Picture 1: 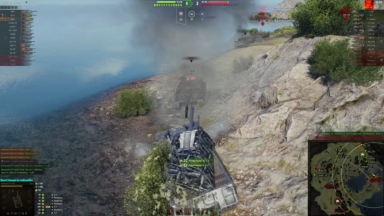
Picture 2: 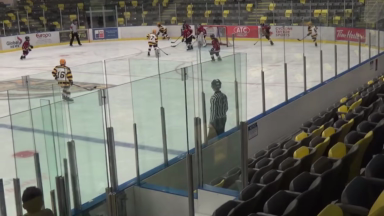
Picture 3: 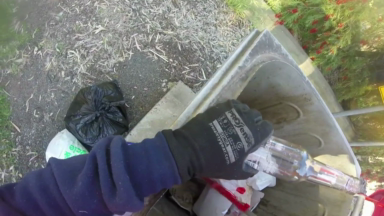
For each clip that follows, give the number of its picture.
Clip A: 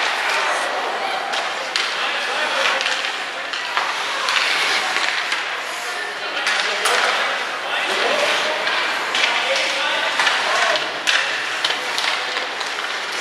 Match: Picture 2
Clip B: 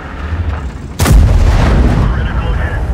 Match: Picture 1